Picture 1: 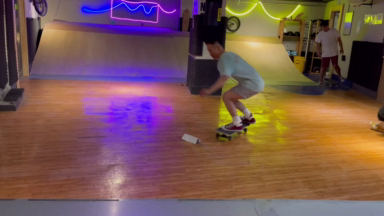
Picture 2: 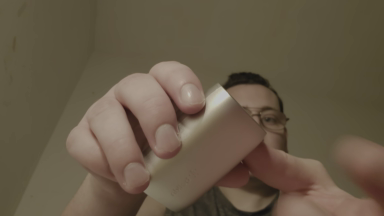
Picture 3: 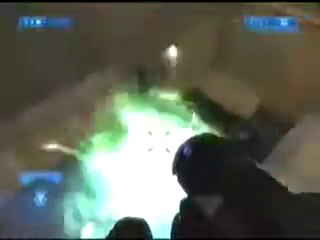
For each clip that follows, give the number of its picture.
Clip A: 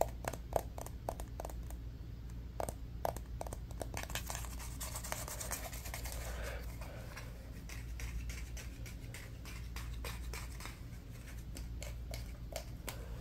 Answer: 2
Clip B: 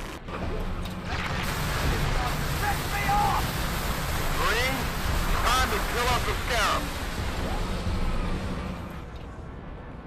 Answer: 3